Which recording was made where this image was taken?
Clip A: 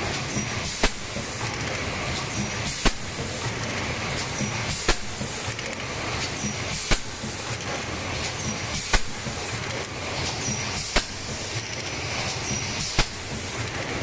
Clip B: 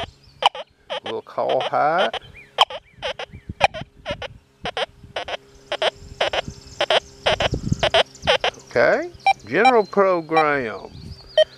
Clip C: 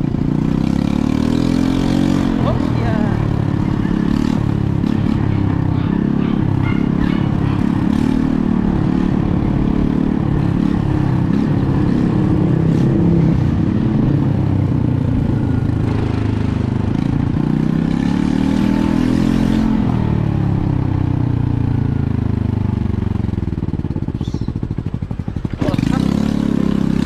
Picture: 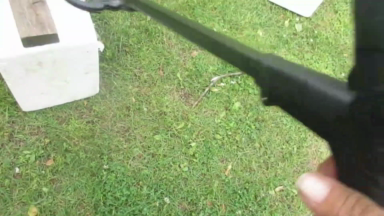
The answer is B